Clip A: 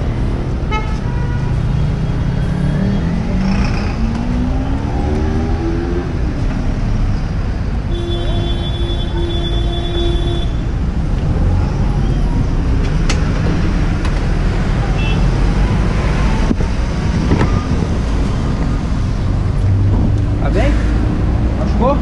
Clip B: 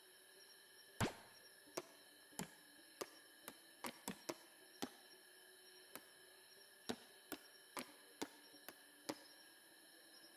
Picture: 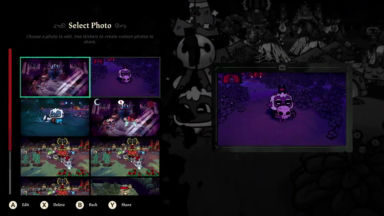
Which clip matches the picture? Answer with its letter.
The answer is B